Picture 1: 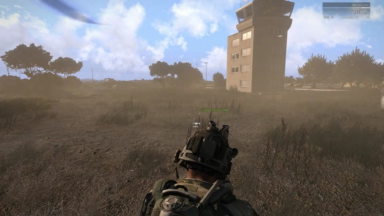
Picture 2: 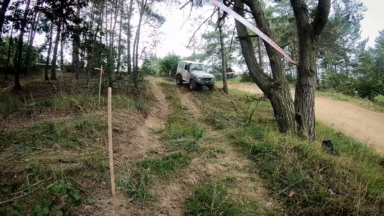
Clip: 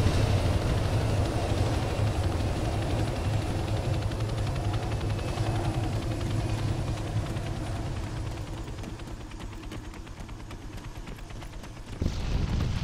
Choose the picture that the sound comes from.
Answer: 1